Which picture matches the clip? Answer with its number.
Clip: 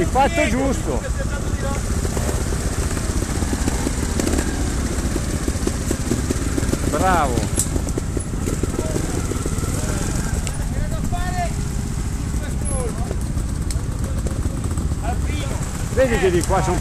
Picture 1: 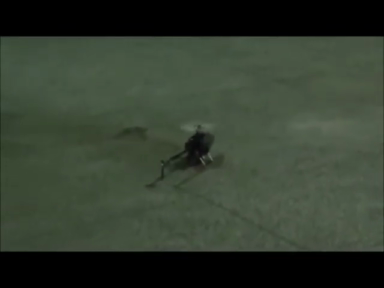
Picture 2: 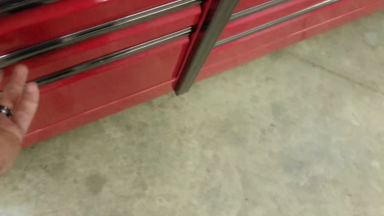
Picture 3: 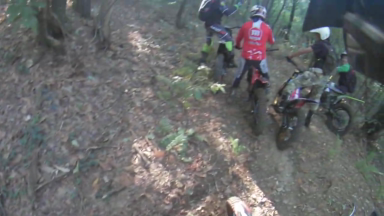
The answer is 3